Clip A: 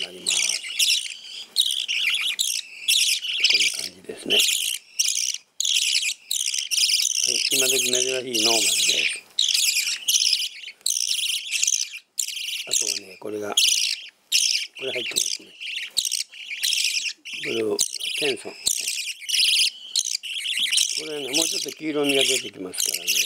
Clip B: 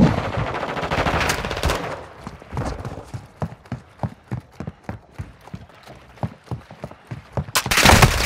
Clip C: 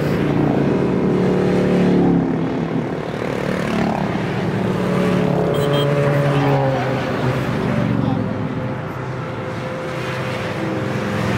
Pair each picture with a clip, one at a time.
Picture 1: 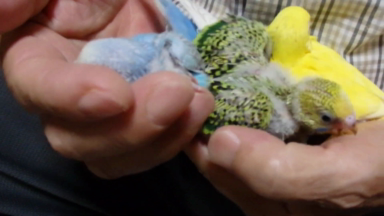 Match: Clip A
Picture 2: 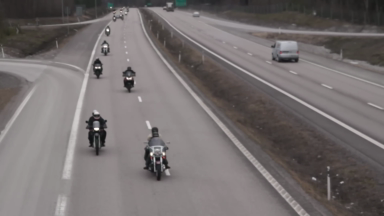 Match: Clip C